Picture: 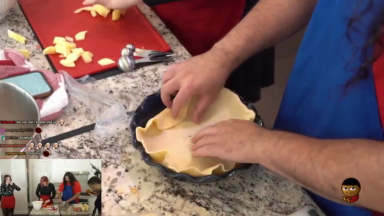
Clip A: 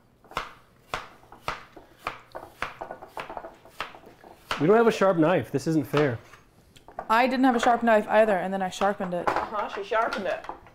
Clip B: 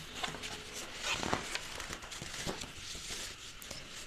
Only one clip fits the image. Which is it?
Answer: A